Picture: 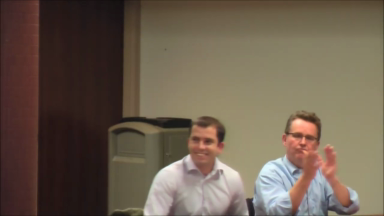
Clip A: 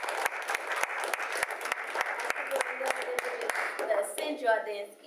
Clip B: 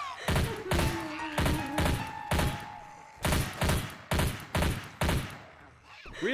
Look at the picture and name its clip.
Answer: A